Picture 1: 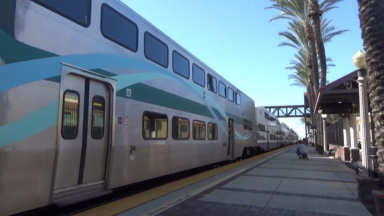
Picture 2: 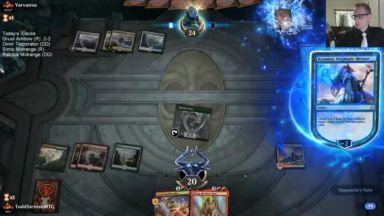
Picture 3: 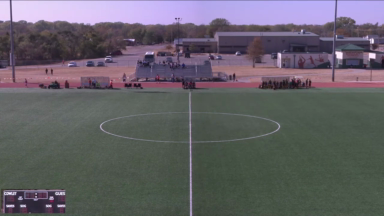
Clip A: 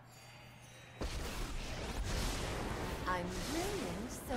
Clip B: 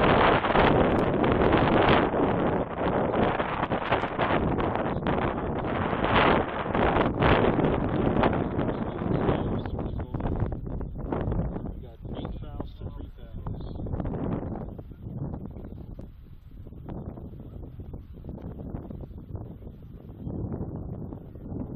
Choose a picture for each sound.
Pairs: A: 2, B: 3